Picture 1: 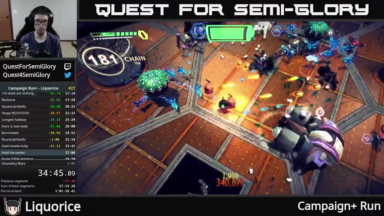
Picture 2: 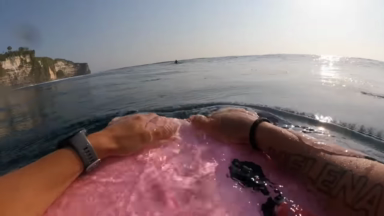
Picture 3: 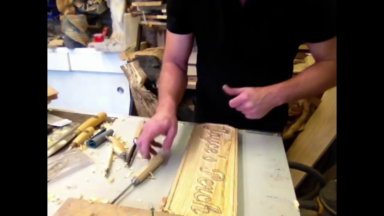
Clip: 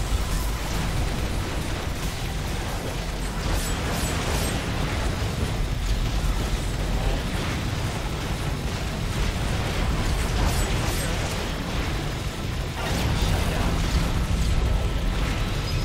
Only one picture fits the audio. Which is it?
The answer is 1